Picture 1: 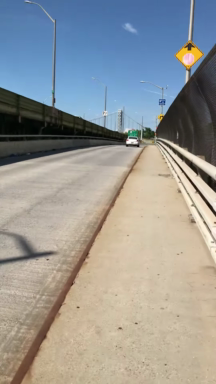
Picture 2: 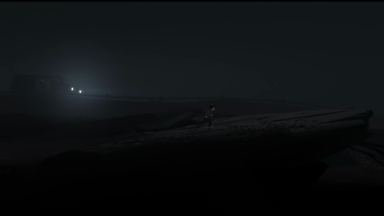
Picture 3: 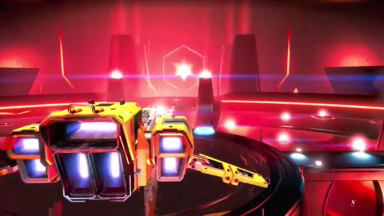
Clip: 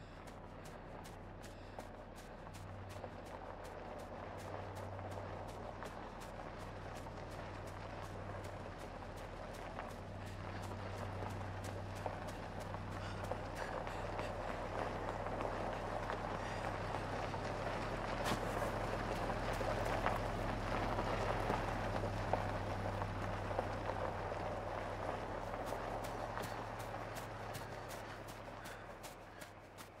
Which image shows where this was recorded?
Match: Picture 2